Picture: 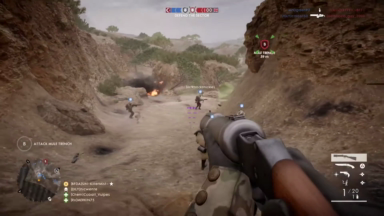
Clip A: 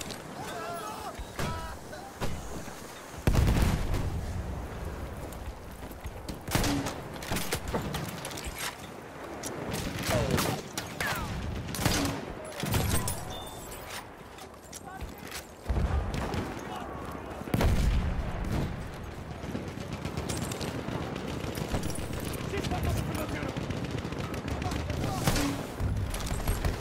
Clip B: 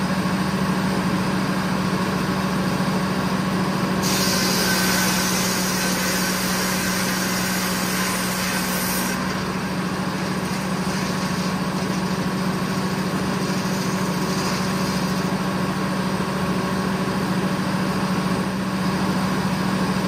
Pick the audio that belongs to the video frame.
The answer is A